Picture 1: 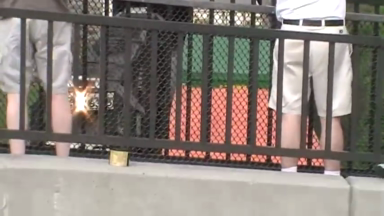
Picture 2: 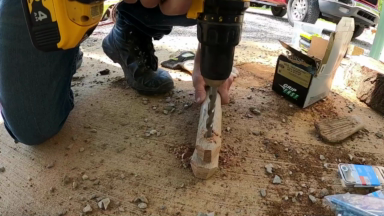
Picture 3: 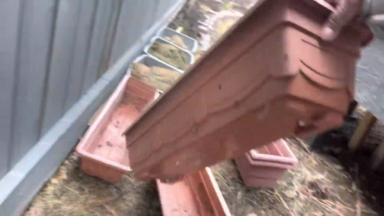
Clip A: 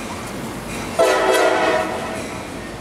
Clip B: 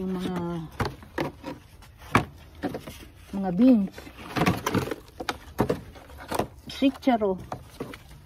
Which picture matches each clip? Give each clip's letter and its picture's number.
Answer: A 1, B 3